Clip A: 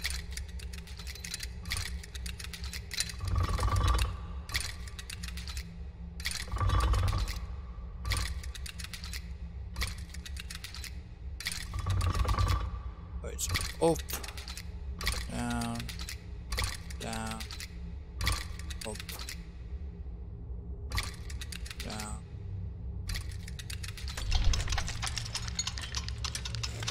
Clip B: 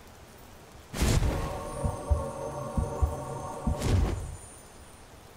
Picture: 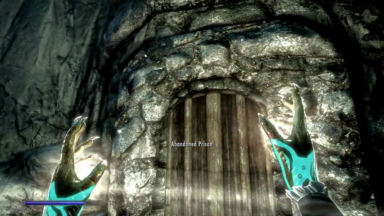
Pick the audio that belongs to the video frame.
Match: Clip B